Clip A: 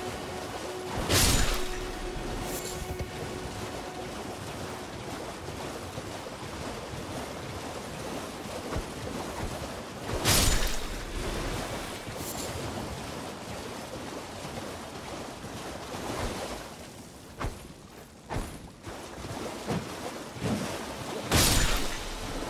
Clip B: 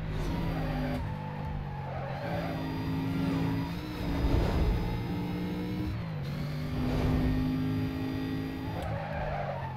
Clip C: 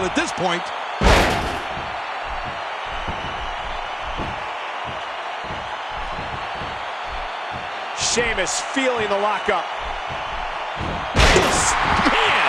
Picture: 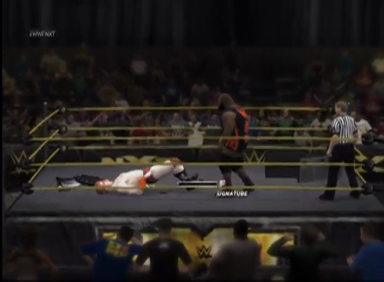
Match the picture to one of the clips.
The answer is C